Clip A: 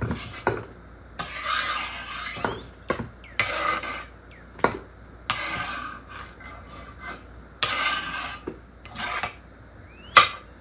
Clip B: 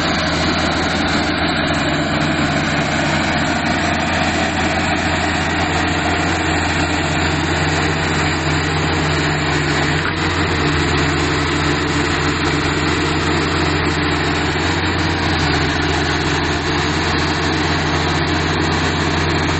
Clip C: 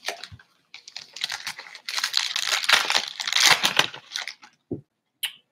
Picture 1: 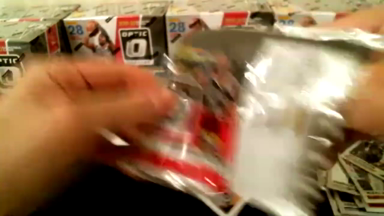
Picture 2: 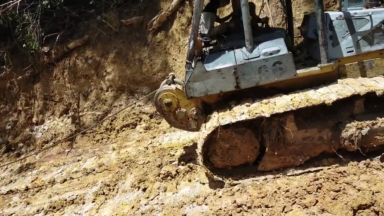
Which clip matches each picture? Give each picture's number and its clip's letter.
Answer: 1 C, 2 B